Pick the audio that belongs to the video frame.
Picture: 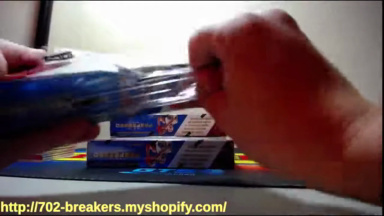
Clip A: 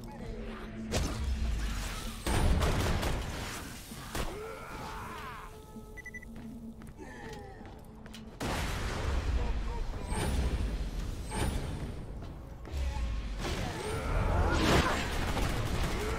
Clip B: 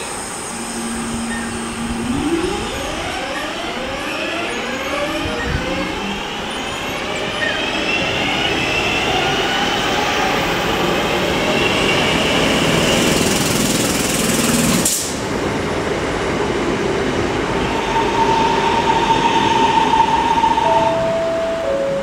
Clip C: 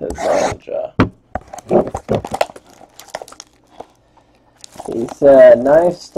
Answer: C